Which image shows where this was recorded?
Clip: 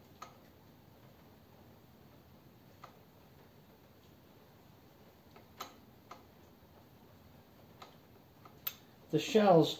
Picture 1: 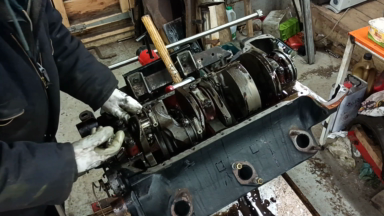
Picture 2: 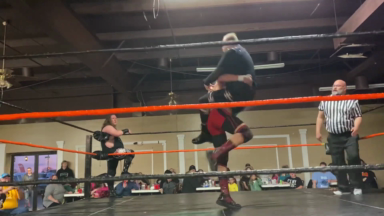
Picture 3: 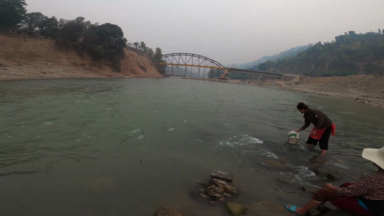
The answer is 1